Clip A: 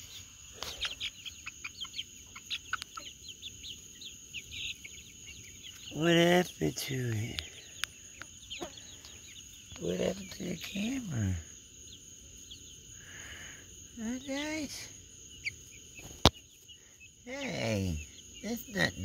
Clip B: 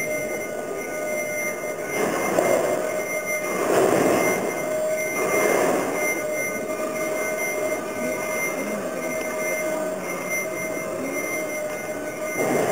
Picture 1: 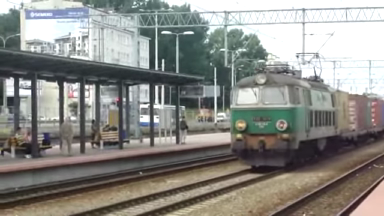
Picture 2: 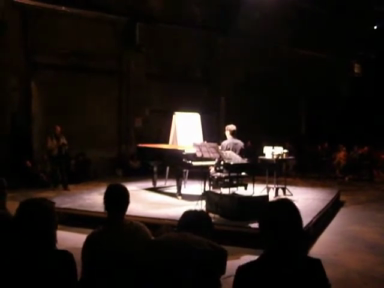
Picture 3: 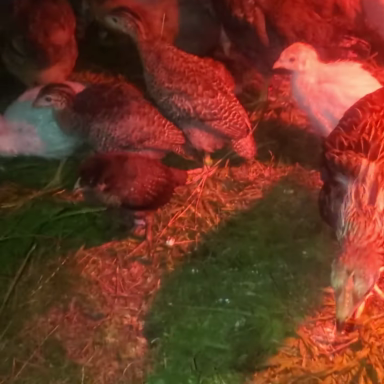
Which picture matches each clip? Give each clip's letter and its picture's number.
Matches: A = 3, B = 2